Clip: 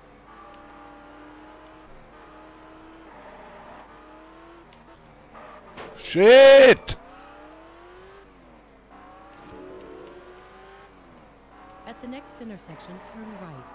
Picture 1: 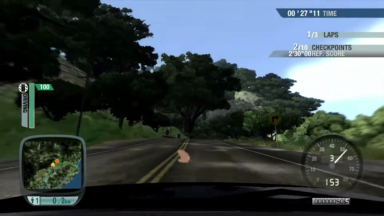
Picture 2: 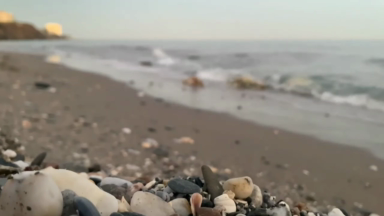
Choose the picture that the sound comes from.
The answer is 1